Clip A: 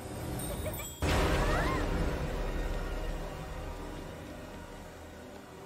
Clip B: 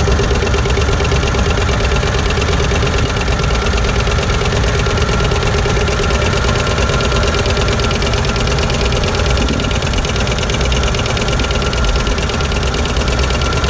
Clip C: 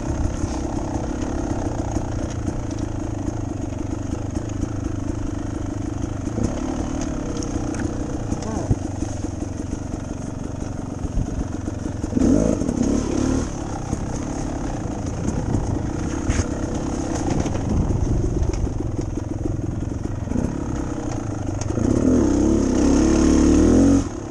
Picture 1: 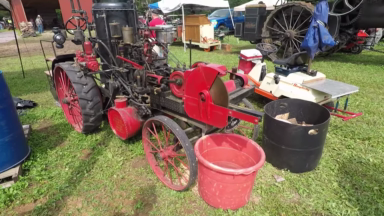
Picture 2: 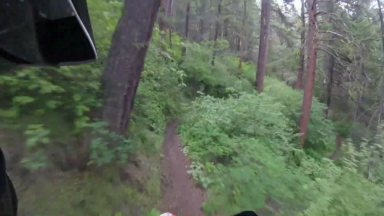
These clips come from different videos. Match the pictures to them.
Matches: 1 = B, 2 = C